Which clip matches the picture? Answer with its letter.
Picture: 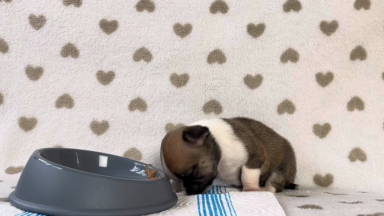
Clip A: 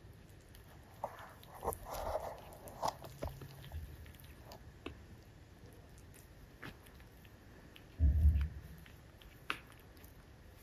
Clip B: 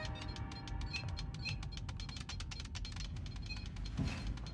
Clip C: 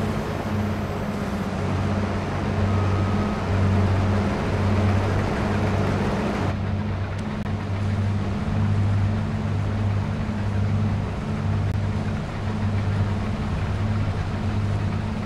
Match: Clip A